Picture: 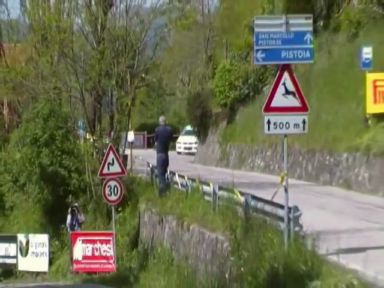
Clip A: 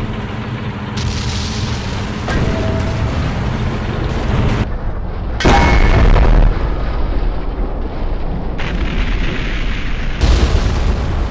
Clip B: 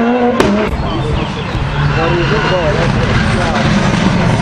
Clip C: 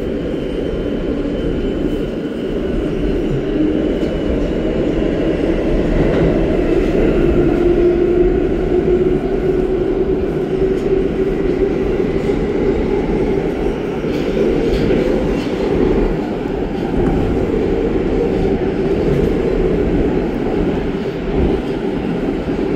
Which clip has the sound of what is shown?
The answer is B